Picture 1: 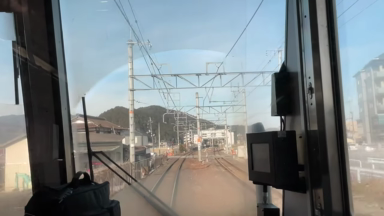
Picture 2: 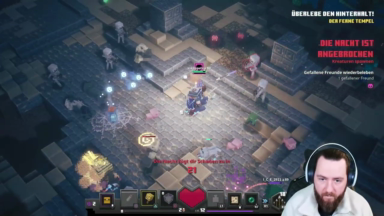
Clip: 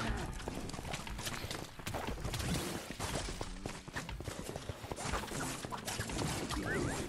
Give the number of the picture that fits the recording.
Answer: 2